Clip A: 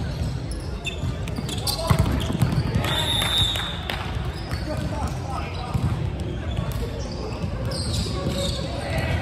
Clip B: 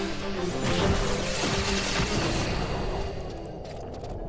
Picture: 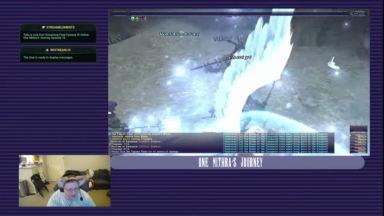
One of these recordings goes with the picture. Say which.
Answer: B